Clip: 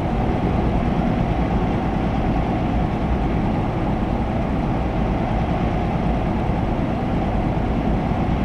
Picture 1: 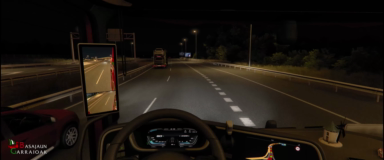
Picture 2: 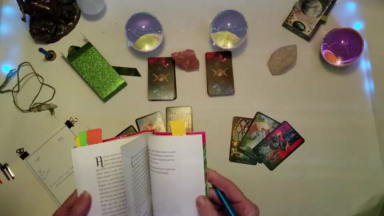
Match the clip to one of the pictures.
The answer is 1